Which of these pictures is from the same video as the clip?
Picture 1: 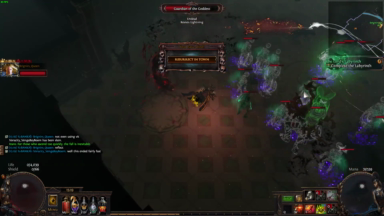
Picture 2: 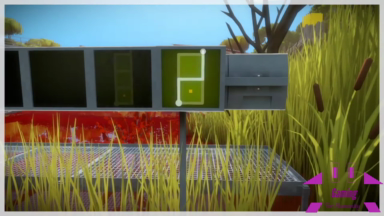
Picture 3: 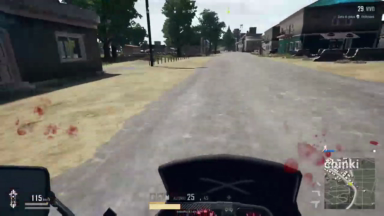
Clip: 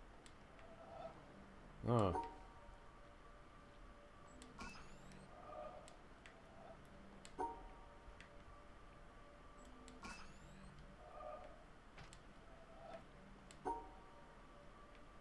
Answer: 2